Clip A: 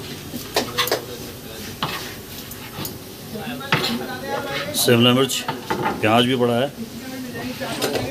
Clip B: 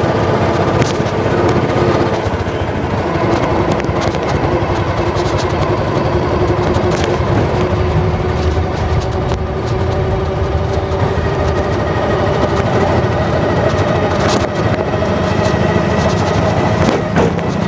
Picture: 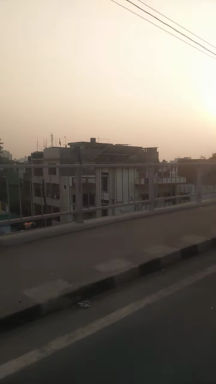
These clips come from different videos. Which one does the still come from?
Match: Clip B